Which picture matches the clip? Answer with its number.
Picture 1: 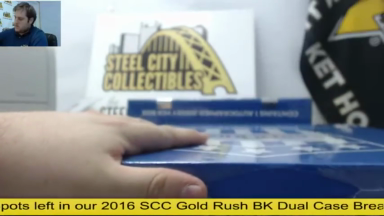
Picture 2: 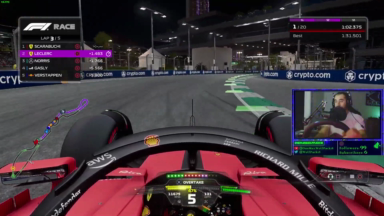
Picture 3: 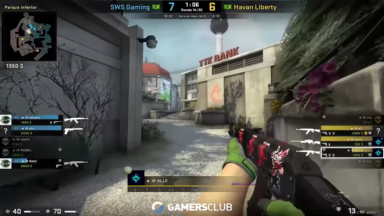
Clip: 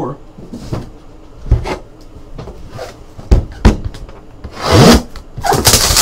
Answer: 1